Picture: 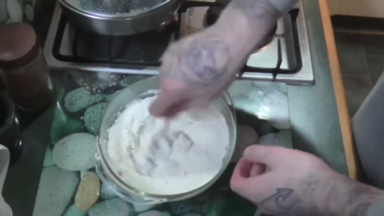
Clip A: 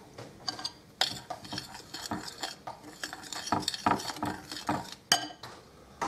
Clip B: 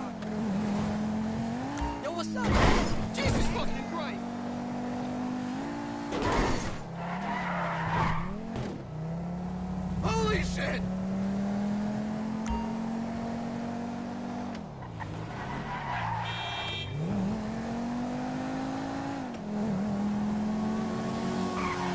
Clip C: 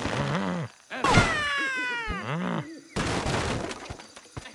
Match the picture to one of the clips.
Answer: A